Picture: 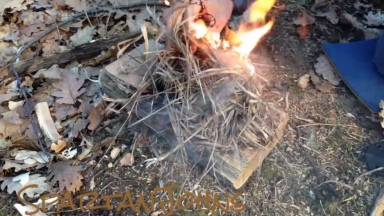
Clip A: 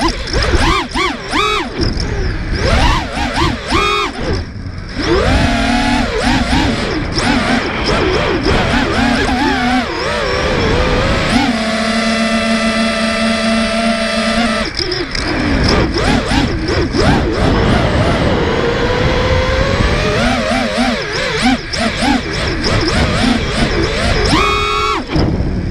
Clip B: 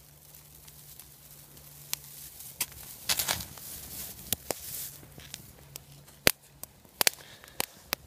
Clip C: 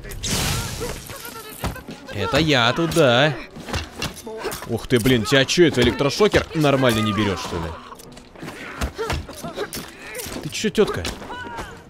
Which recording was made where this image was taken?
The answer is B